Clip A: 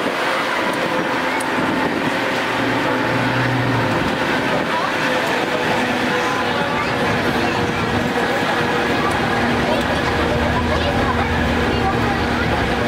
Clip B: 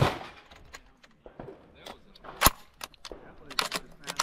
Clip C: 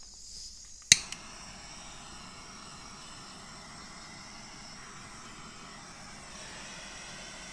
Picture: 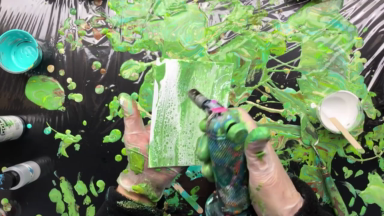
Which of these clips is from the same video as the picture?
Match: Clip C